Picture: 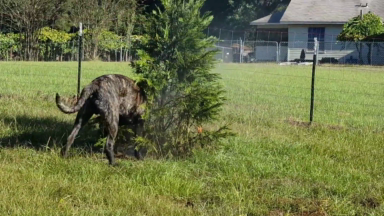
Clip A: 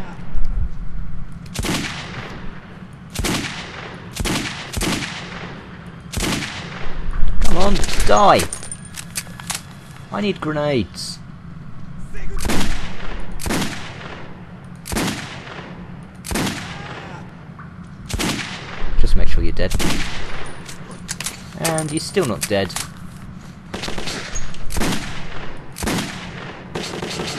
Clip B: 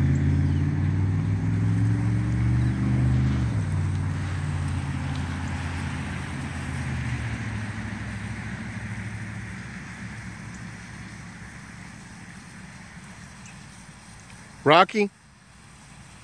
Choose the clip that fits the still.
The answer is B